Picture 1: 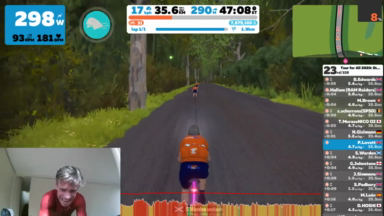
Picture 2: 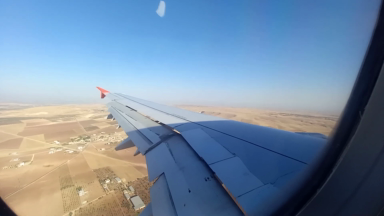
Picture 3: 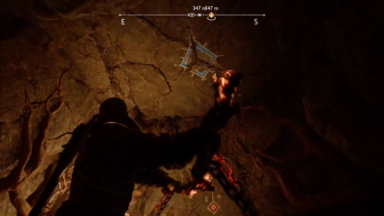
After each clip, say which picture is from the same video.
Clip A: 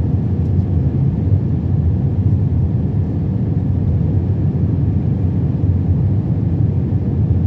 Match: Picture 2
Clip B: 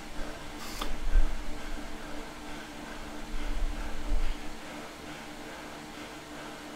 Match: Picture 1